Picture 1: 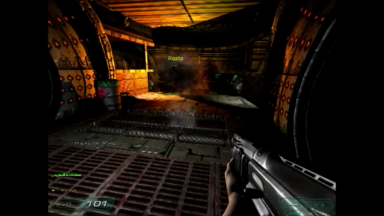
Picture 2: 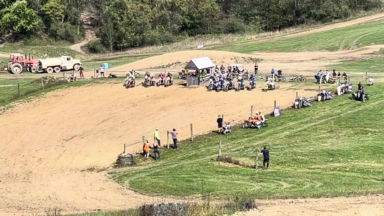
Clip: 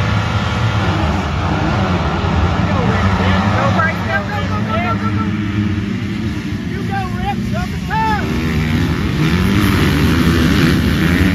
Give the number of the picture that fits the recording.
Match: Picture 2